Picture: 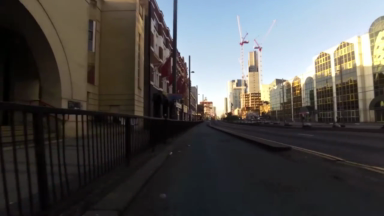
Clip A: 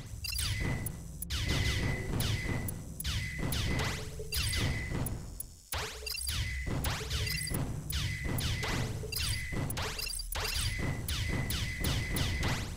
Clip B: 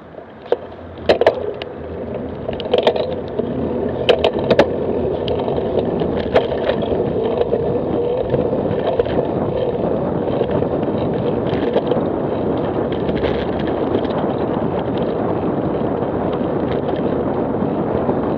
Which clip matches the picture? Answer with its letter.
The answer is B